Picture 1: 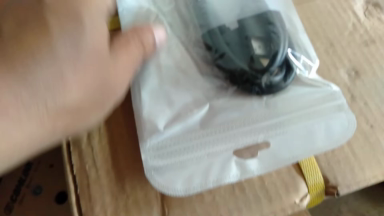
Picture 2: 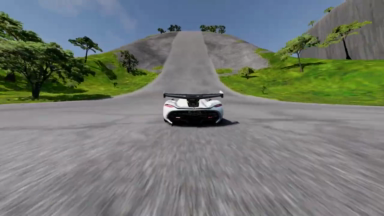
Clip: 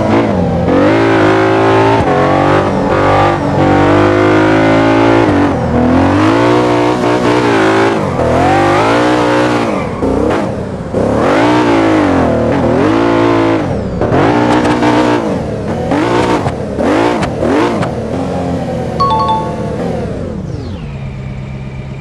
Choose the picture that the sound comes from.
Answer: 2